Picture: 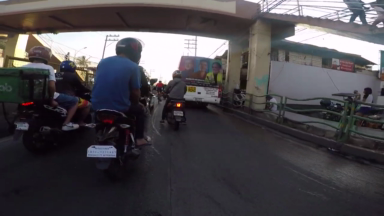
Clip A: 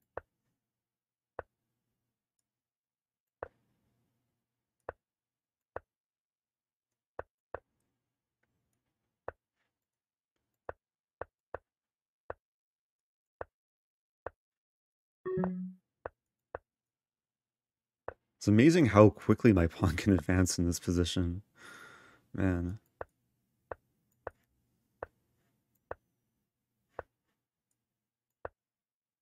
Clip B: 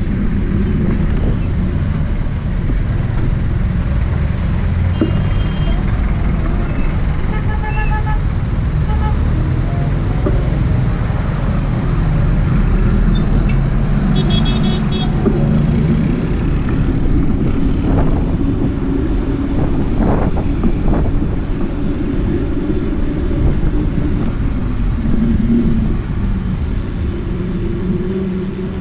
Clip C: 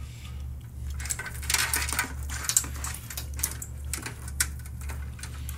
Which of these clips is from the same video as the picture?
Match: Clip B